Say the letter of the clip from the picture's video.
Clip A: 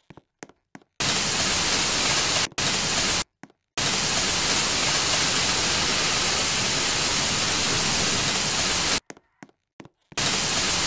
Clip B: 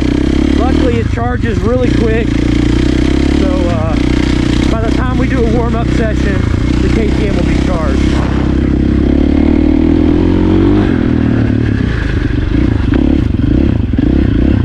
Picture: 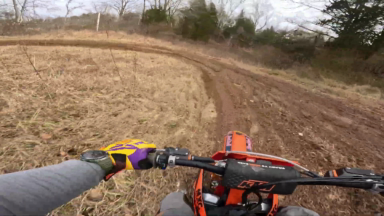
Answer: B